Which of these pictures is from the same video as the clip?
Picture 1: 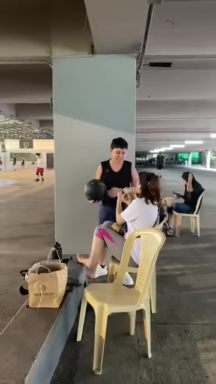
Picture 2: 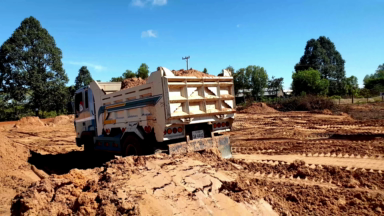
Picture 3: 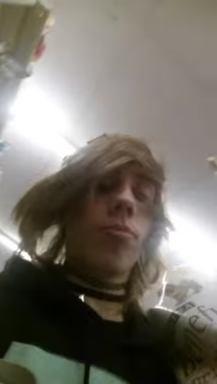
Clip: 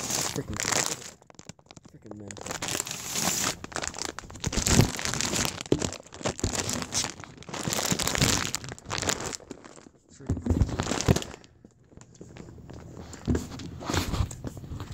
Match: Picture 3